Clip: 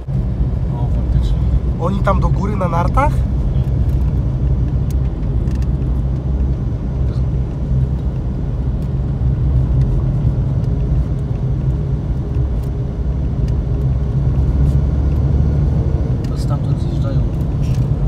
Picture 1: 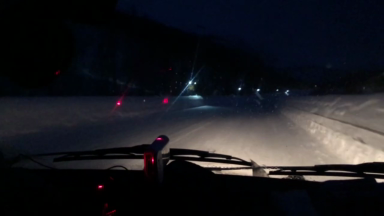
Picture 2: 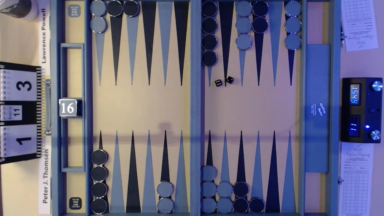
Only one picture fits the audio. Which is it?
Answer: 1